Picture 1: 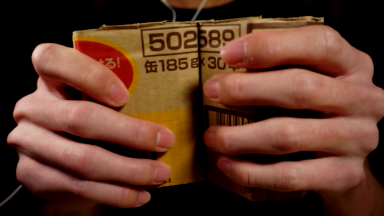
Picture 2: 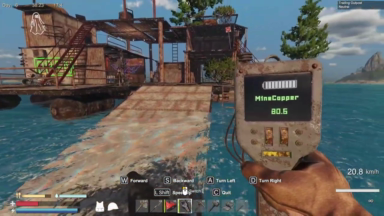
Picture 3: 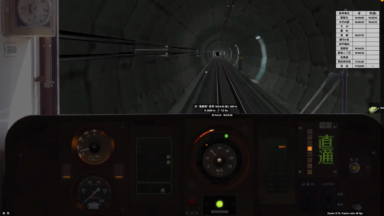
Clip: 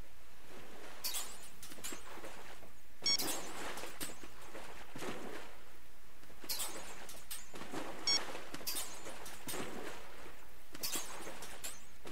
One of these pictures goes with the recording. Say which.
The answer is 2